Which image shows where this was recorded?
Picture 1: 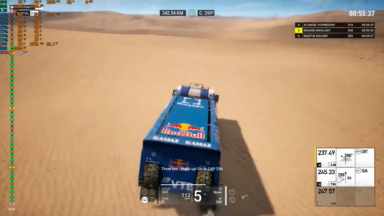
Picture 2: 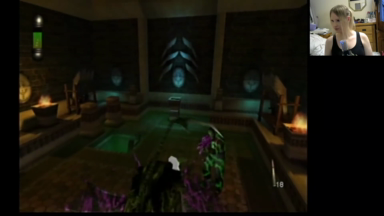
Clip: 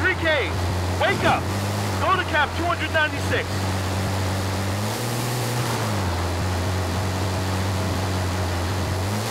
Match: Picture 1